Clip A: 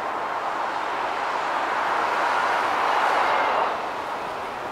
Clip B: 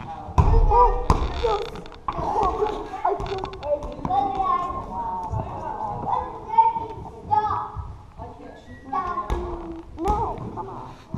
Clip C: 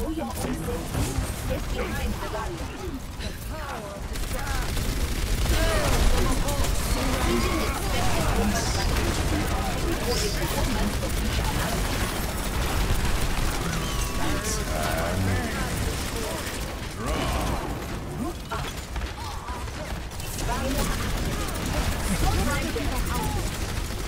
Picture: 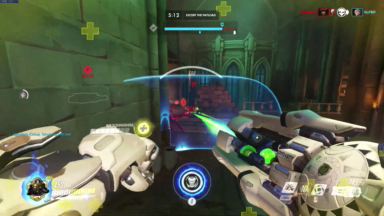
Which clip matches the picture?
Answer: C